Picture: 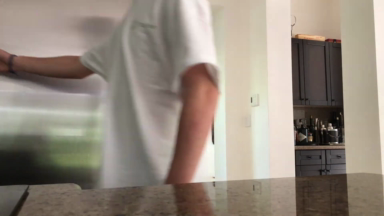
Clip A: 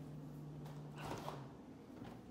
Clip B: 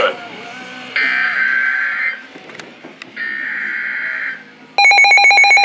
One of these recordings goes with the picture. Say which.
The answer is A